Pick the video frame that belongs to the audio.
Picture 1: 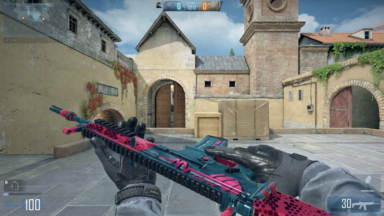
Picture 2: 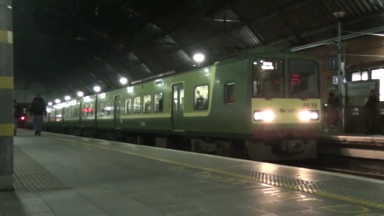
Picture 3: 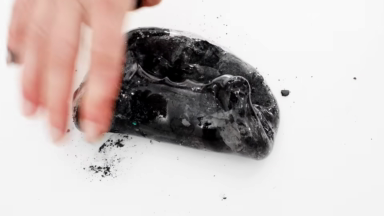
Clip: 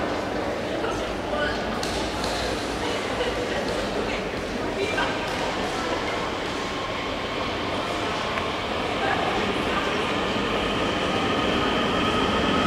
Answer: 2